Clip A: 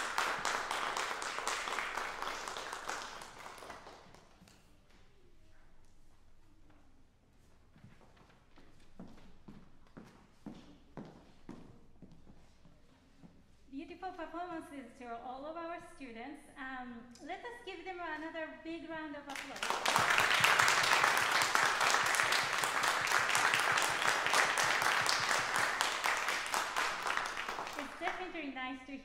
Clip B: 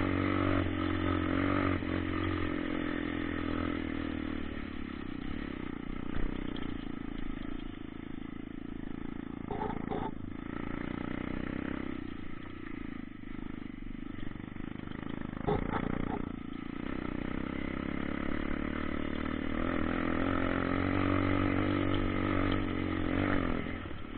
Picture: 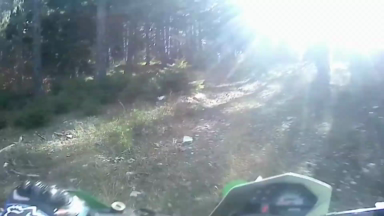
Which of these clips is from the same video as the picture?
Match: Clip B